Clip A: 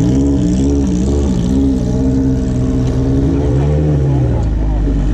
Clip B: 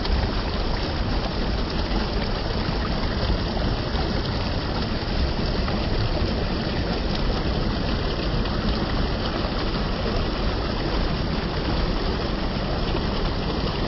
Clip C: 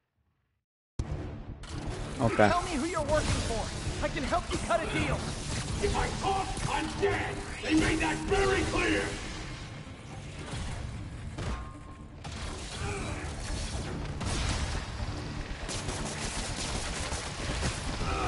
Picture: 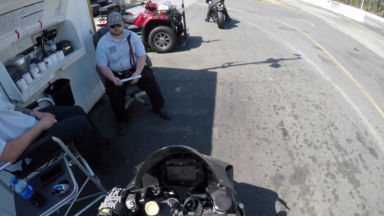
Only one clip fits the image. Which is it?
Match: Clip A